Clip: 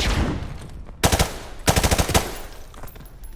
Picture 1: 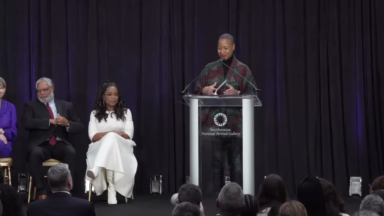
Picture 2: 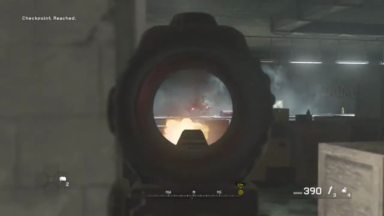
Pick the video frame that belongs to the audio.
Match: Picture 2